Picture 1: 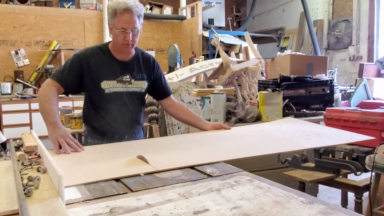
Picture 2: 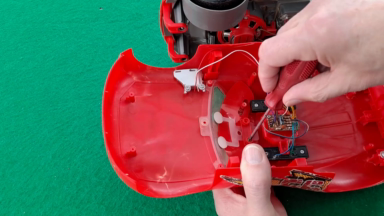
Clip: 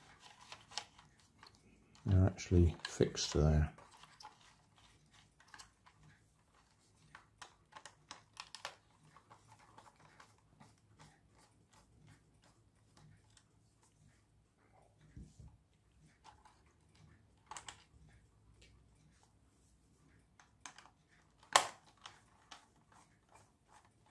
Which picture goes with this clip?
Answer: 2